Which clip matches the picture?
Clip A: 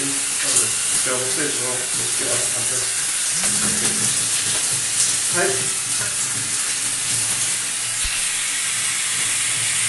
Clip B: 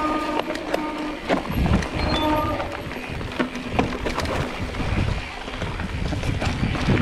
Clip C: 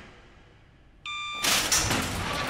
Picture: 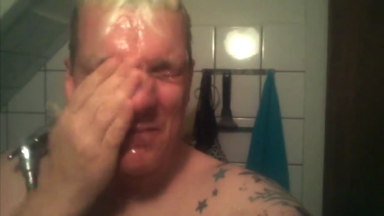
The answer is A